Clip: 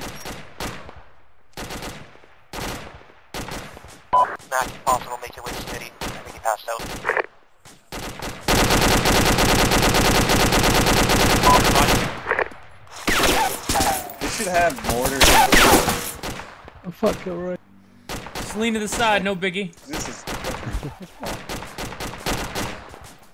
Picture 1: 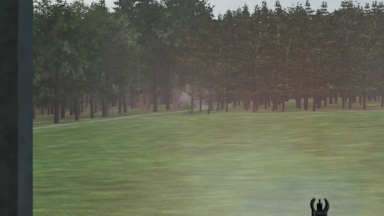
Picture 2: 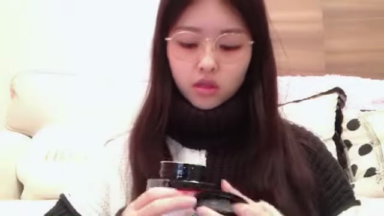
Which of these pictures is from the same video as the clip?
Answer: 1